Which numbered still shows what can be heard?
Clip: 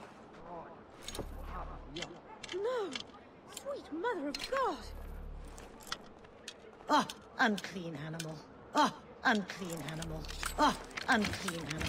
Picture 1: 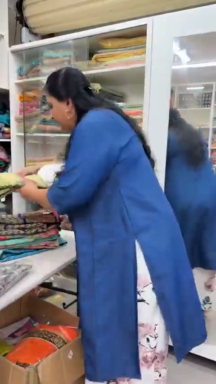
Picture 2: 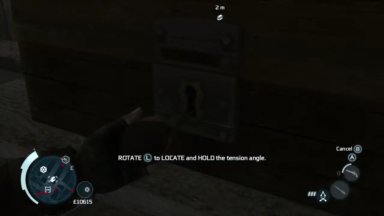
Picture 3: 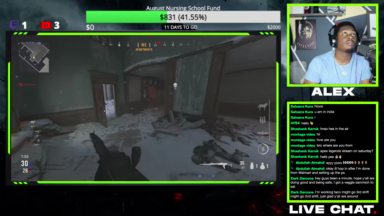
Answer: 2